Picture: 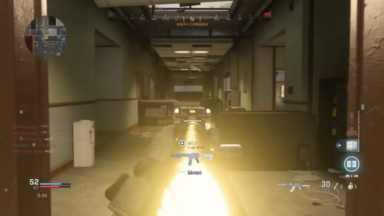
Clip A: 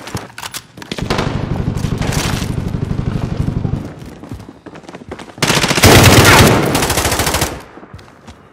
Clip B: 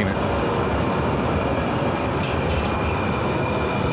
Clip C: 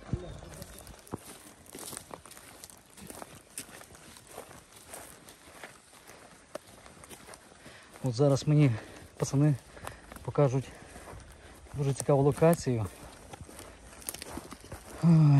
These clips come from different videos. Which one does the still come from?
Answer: A